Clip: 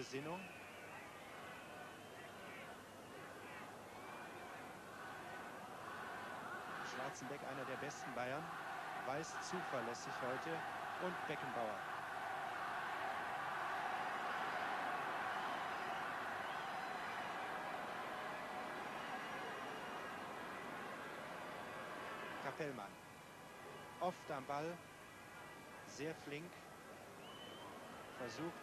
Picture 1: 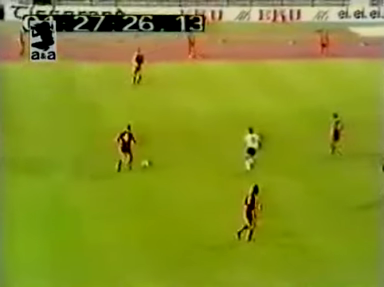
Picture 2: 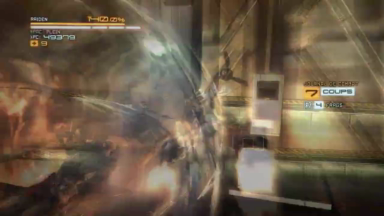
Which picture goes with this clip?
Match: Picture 1